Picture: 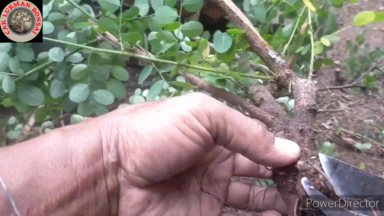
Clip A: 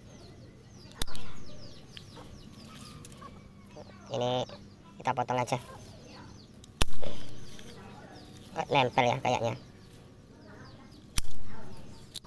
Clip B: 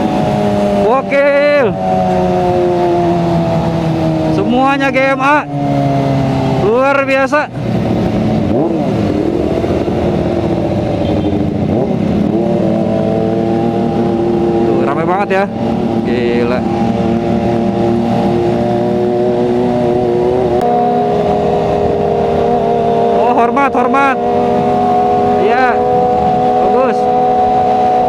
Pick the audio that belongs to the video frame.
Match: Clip A